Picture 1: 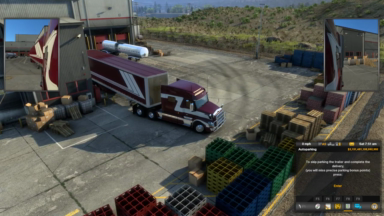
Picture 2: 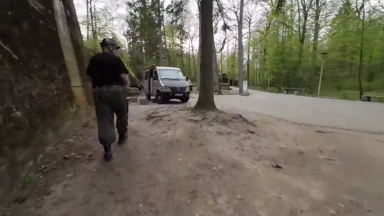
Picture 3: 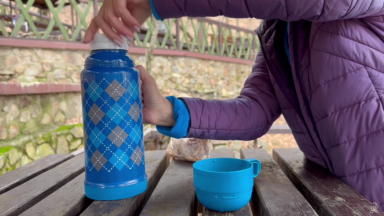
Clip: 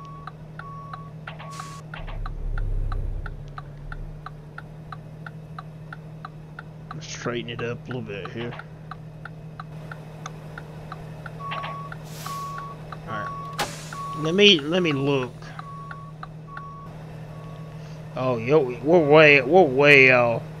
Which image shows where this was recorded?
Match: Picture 1